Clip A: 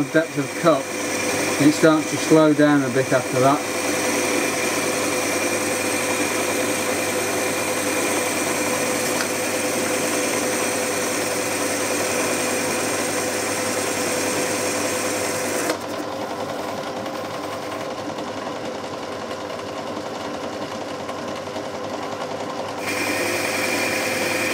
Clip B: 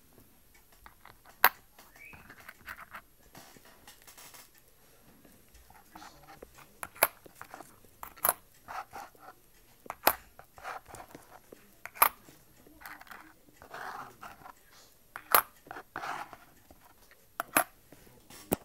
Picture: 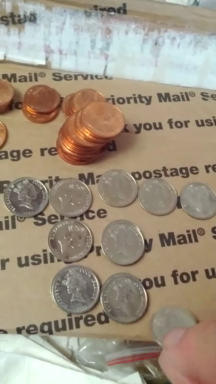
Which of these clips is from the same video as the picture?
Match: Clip B